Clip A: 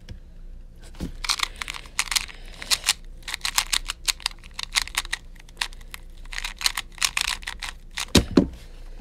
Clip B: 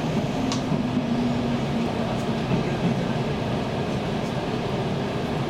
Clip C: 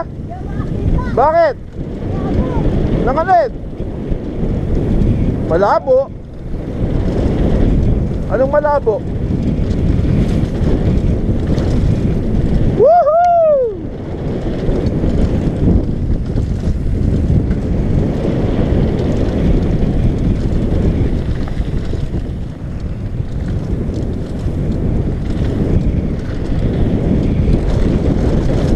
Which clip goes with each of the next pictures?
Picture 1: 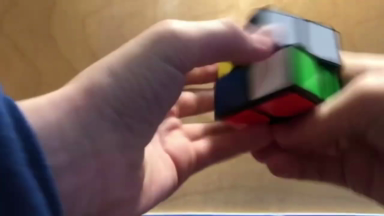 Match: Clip A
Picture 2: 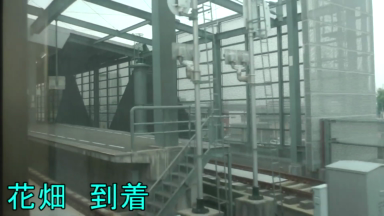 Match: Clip B